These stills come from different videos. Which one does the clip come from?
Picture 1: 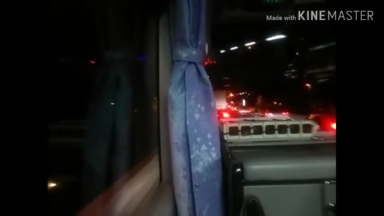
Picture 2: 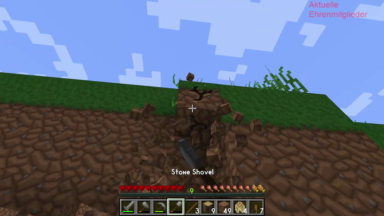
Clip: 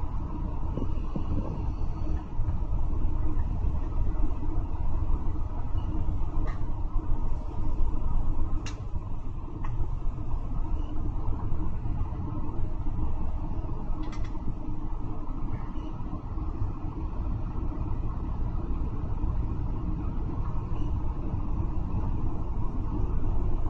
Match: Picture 1